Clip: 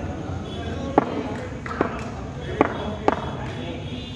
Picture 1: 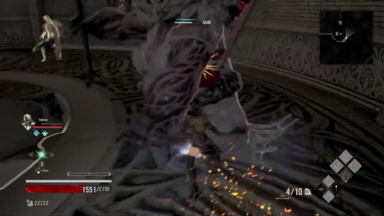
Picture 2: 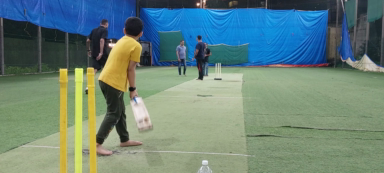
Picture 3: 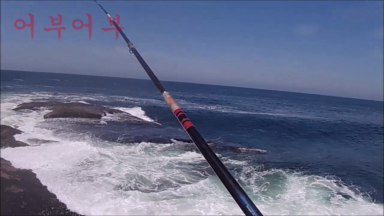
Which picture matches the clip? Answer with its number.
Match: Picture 2